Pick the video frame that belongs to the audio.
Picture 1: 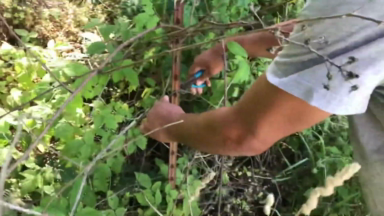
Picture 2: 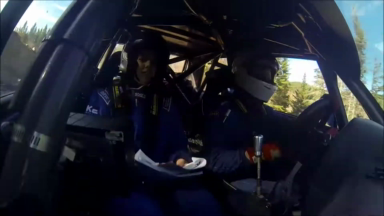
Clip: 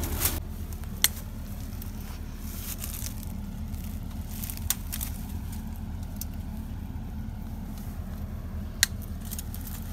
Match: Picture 1